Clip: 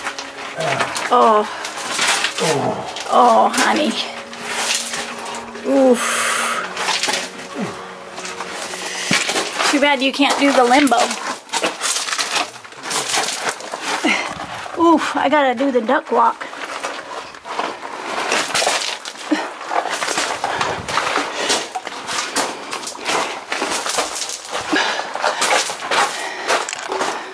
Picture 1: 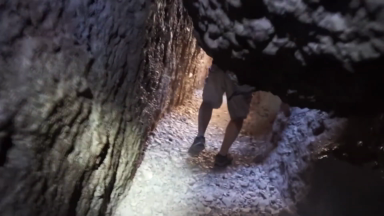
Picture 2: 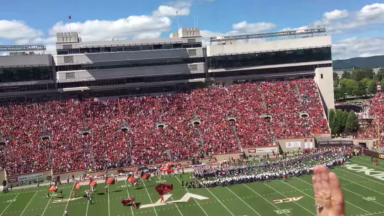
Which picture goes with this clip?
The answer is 1